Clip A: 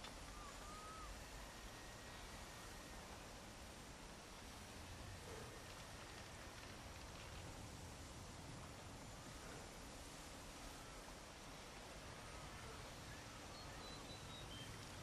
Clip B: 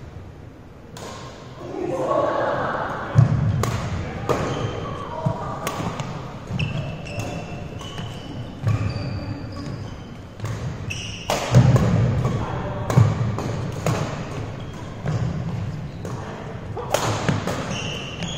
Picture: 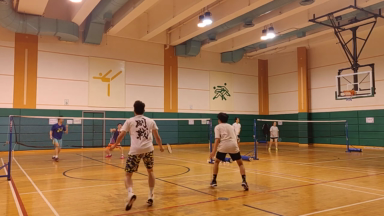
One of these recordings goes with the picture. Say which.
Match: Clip B